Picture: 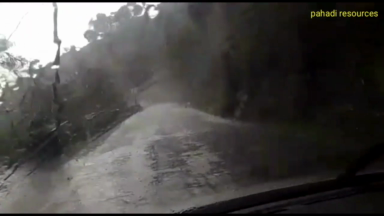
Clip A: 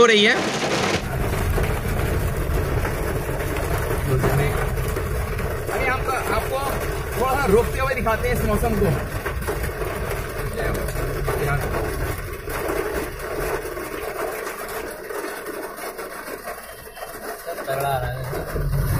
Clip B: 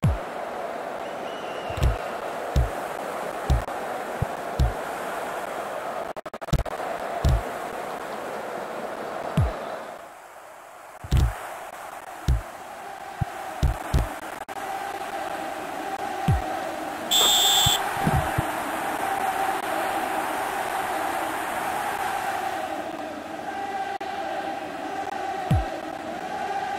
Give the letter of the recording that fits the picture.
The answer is A